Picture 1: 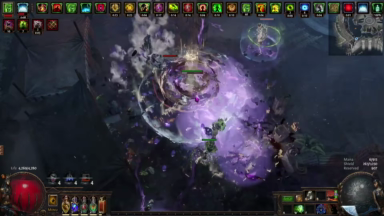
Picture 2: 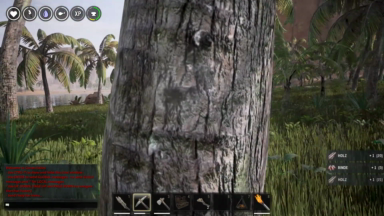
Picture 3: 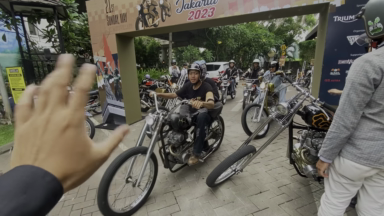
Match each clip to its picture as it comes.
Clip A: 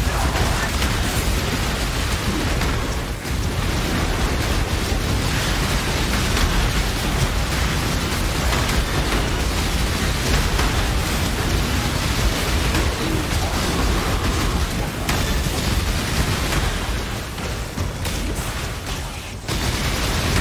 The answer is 1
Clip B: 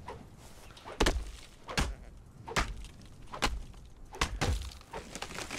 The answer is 2